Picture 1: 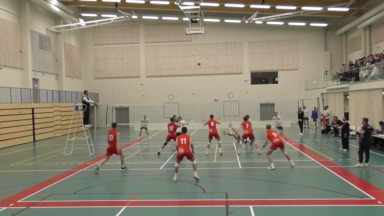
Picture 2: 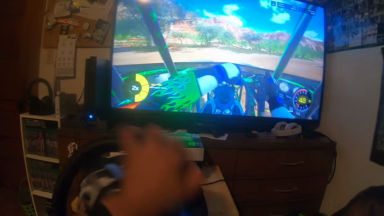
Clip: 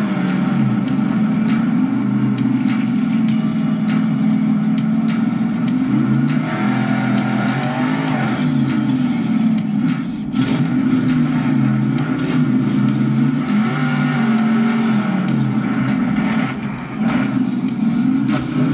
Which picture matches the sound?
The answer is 2